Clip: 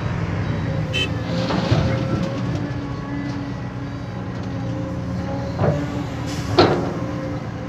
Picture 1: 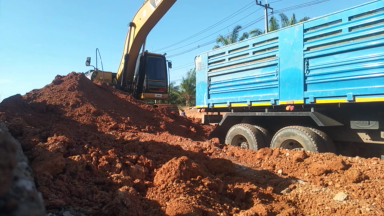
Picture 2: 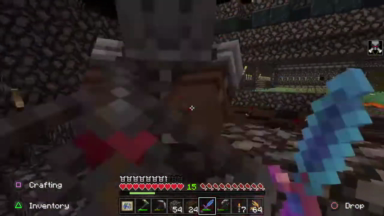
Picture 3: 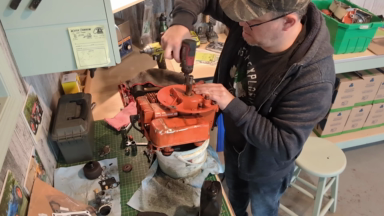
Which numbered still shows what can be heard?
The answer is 1